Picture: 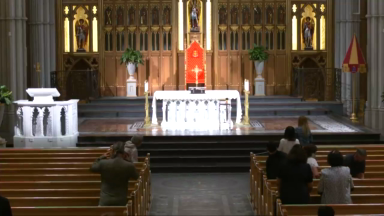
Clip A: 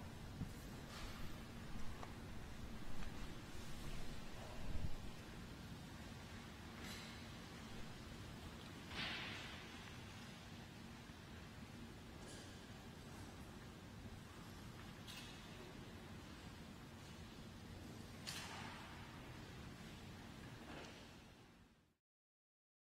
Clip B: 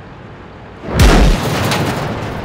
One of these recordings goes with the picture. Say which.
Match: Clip A